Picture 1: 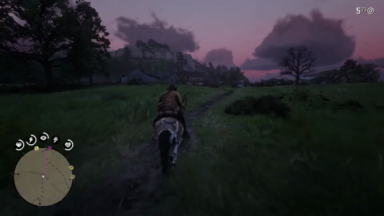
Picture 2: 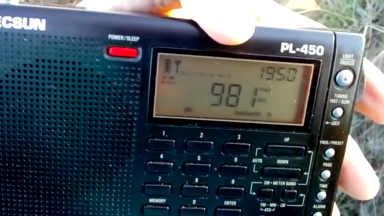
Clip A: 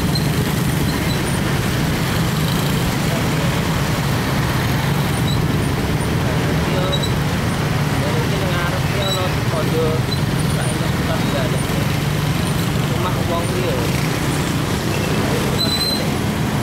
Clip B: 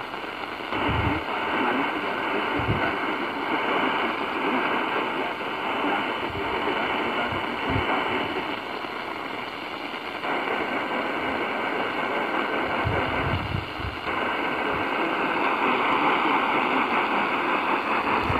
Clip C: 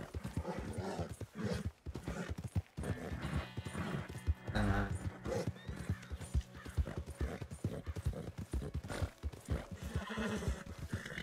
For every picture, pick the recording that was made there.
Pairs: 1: C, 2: B